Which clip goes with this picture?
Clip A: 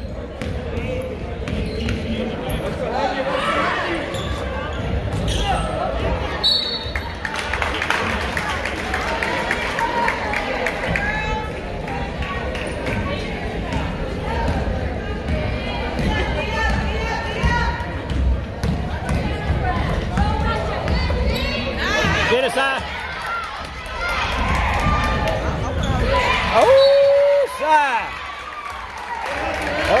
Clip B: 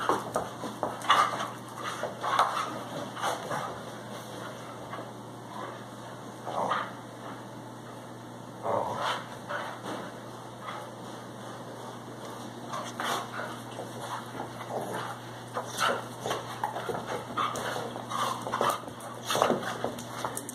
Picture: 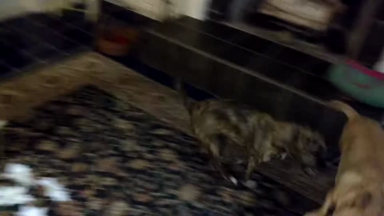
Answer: B